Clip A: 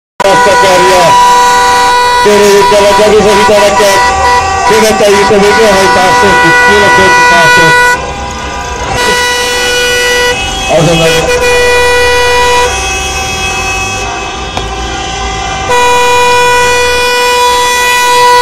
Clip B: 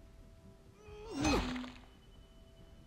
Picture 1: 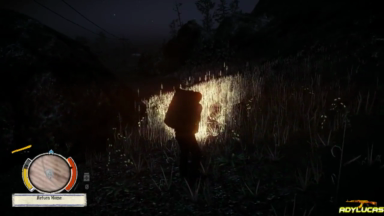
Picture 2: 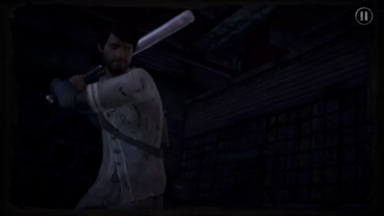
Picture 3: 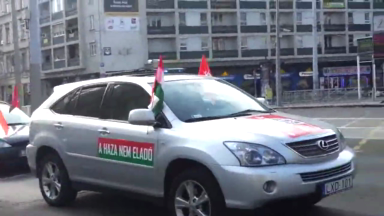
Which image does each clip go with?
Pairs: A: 3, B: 2